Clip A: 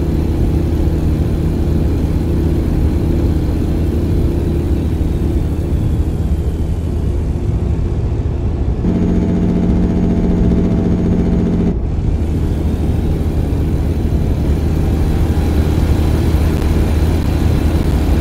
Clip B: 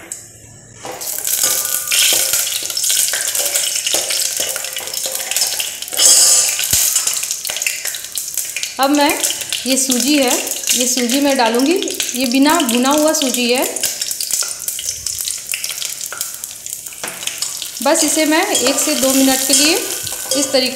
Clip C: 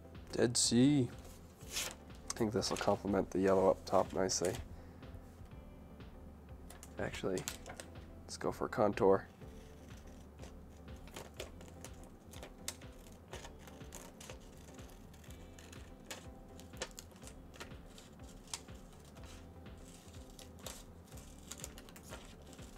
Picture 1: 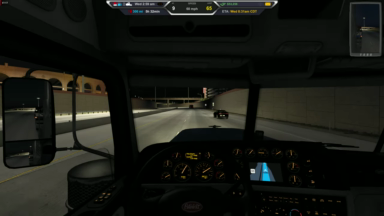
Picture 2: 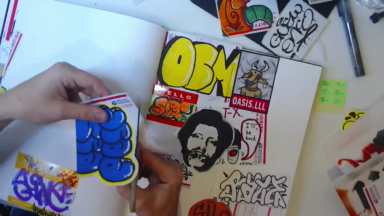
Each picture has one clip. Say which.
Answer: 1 A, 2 C